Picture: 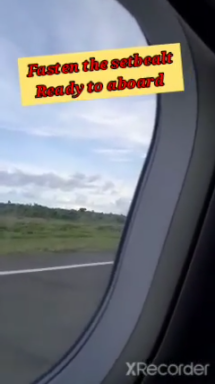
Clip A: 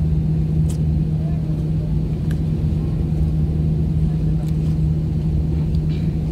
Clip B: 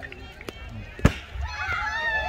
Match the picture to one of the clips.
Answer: A